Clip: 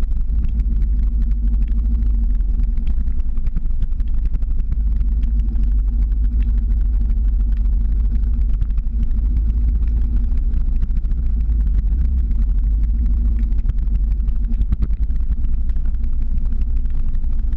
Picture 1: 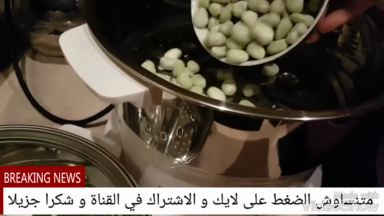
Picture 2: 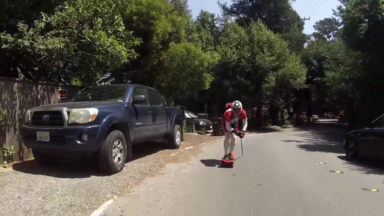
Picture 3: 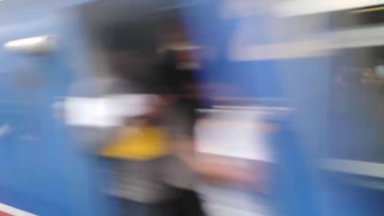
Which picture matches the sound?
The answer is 2